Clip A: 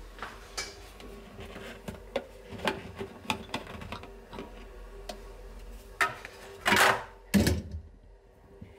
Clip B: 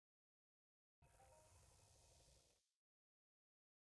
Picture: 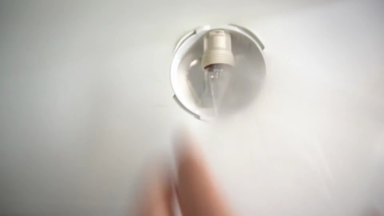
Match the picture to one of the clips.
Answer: A